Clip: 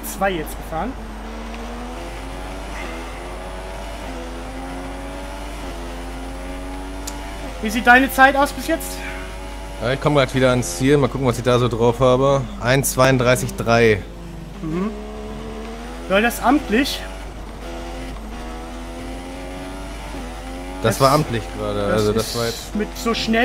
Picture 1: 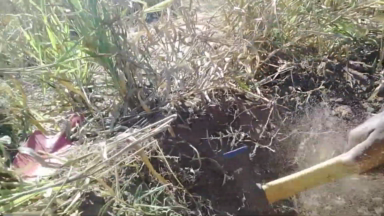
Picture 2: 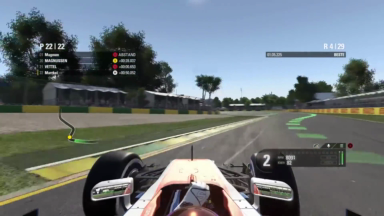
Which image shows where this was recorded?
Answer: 2